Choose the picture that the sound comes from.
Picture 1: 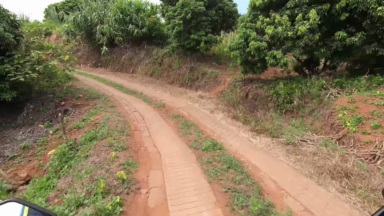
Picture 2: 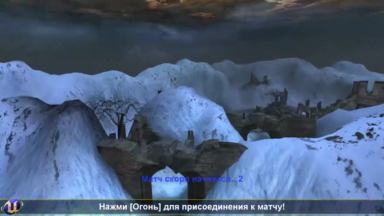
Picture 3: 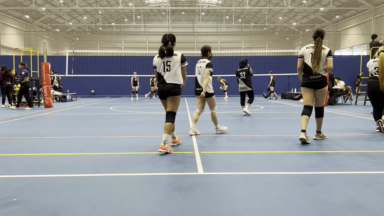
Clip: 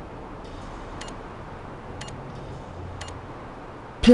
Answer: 2